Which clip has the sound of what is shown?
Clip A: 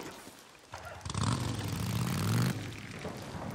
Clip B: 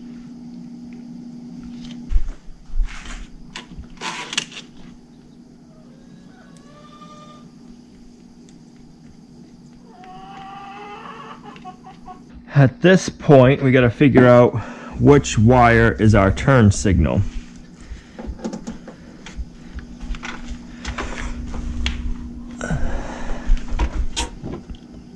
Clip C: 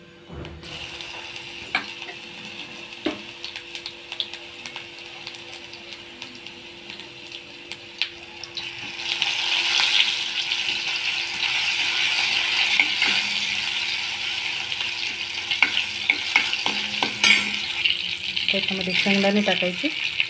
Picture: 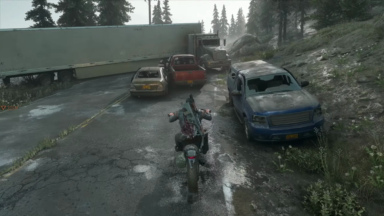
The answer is A